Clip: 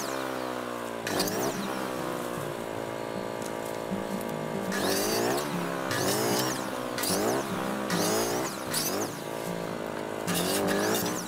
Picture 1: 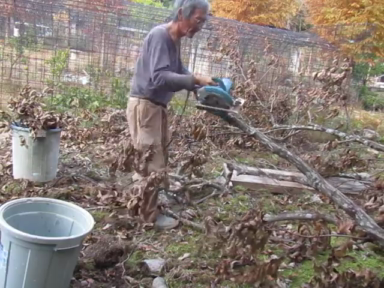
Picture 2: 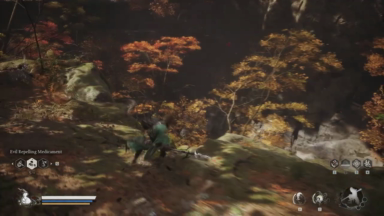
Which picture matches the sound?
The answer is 1